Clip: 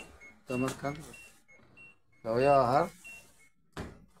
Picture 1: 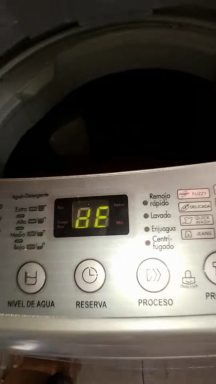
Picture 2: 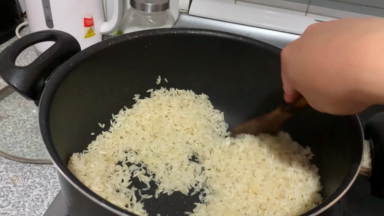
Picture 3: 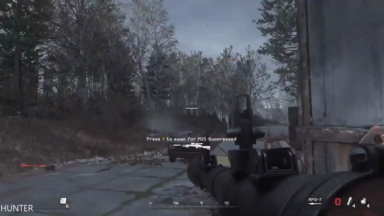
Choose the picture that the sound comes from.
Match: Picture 1